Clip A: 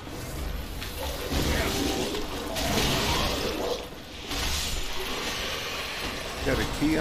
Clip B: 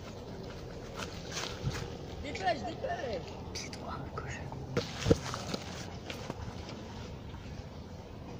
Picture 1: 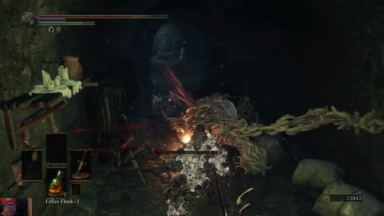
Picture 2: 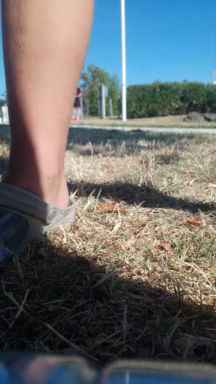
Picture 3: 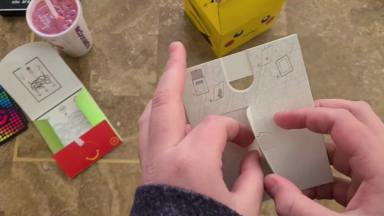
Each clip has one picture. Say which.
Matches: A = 1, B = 2